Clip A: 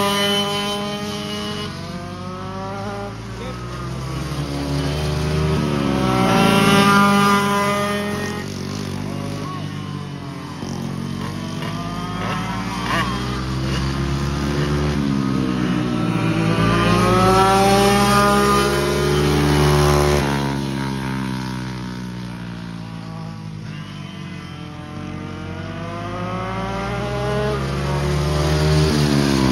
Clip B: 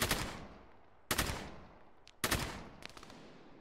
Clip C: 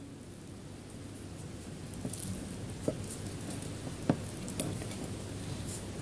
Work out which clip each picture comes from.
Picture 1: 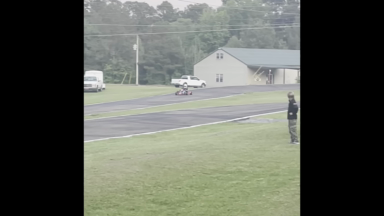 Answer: A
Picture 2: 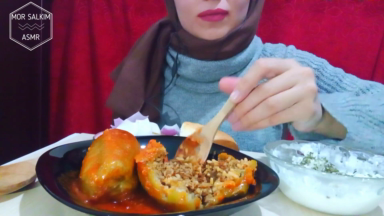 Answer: C